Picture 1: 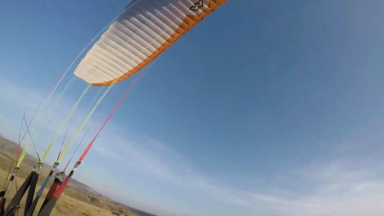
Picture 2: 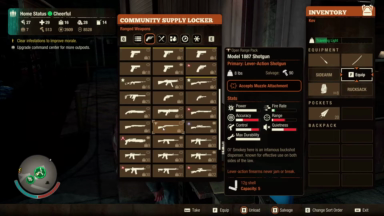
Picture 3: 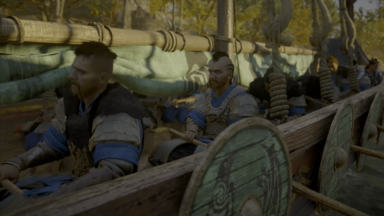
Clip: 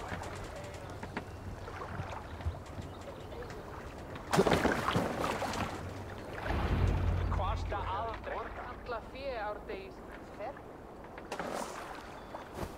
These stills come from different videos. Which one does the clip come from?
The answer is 3